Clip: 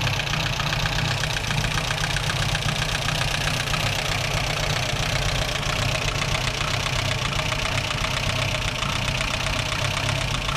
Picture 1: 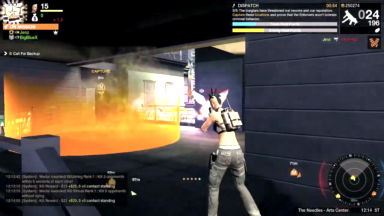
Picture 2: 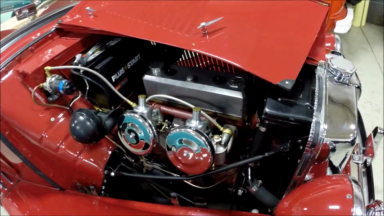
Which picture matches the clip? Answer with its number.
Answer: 2